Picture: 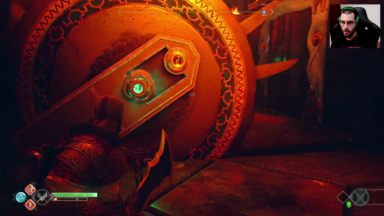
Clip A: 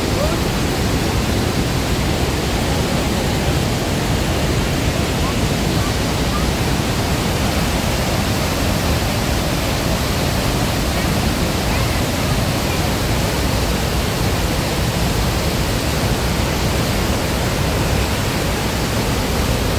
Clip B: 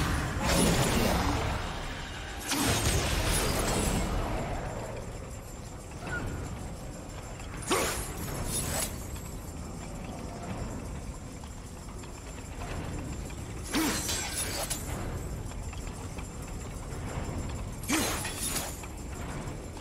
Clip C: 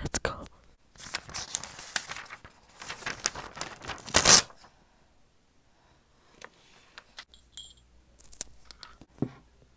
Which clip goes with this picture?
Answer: B